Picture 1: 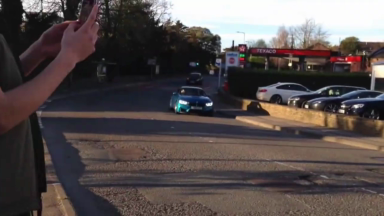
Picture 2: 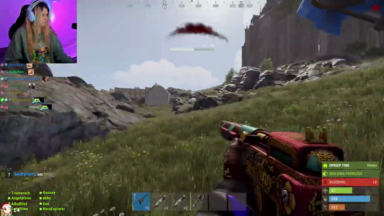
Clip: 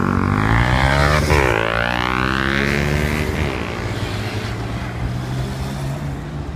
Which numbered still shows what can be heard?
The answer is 1